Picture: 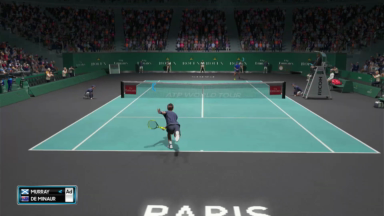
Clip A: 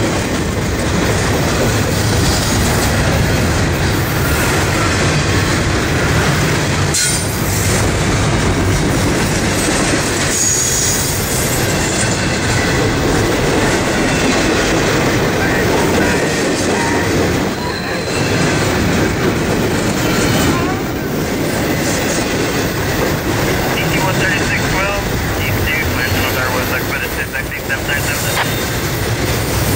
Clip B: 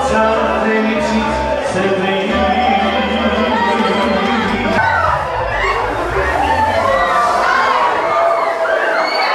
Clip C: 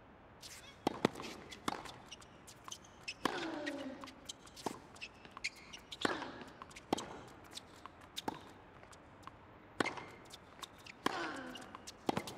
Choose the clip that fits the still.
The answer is C